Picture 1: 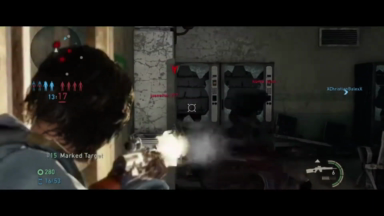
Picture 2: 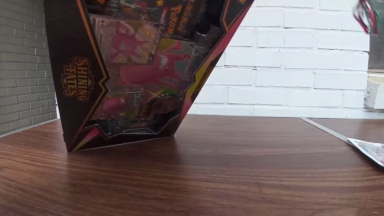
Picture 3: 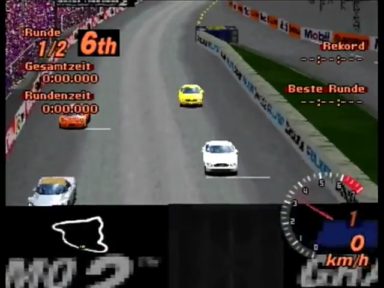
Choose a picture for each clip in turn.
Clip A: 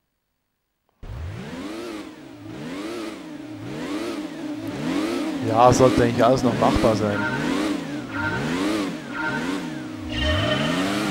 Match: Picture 3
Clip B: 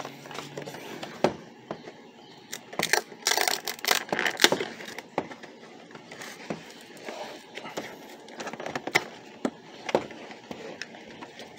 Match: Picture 2